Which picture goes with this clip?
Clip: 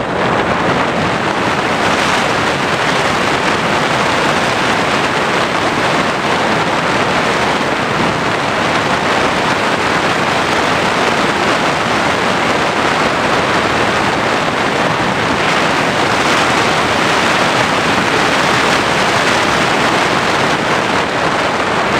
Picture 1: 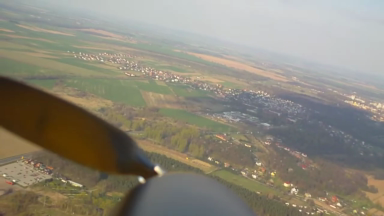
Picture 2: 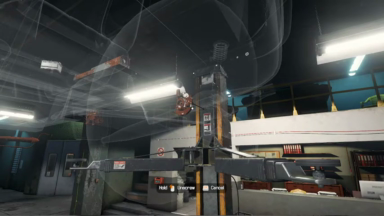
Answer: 1